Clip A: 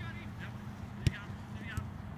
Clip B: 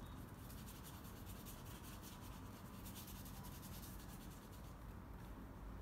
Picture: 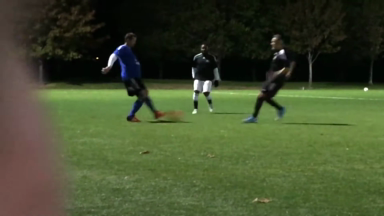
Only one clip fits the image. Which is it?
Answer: A